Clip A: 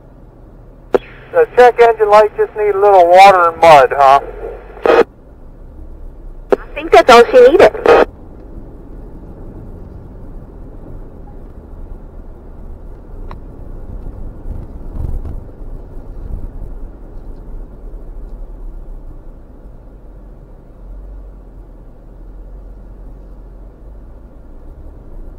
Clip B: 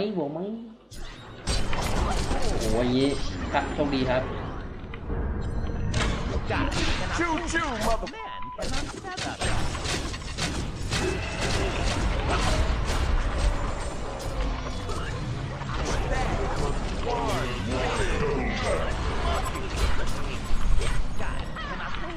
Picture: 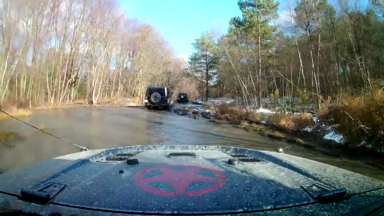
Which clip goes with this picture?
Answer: A